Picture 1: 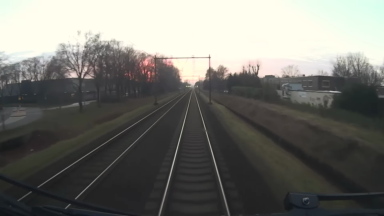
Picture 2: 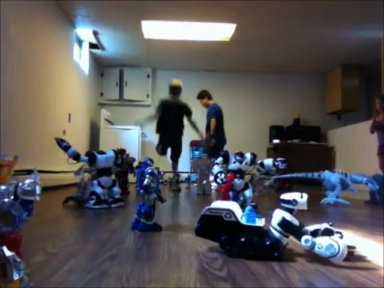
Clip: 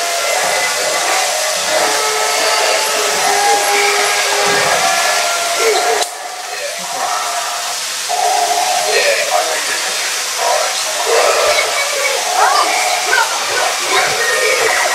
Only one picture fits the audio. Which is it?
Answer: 2